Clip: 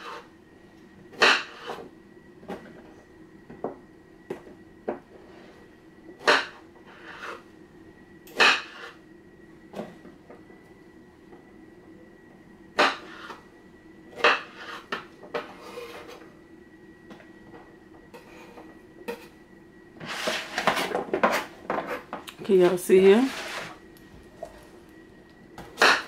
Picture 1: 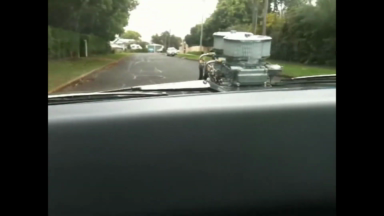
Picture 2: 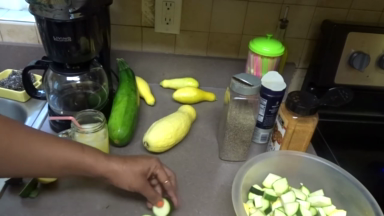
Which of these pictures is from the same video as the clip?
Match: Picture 2